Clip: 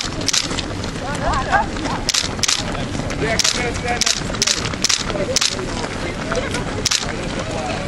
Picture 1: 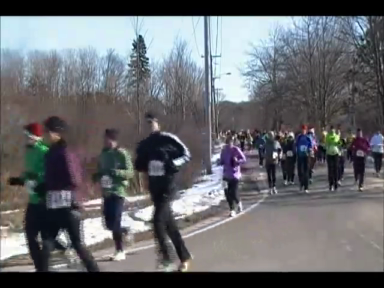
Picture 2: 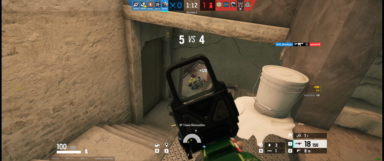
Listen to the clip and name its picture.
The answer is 1